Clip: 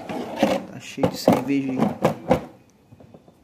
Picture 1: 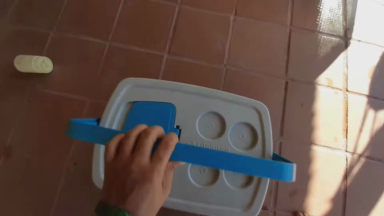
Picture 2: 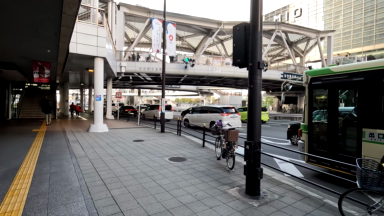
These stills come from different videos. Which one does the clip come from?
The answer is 1